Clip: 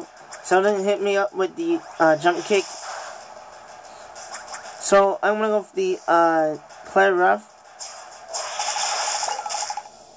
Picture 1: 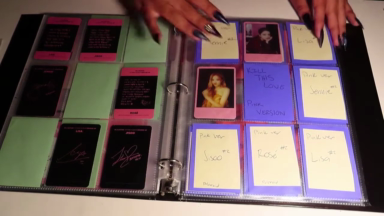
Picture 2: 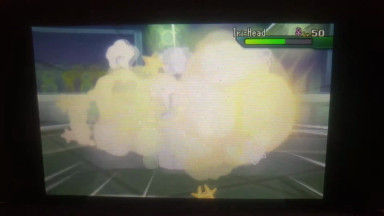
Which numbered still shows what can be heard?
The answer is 2